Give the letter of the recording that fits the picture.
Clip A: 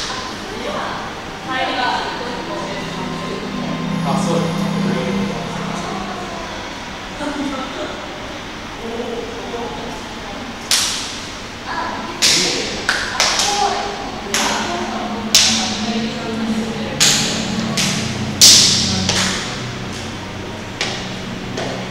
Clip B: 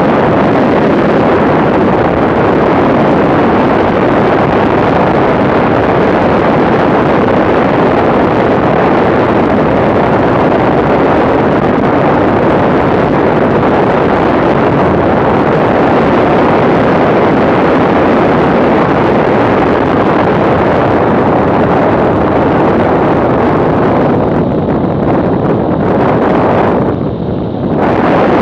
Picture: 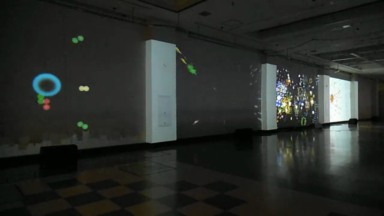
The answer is A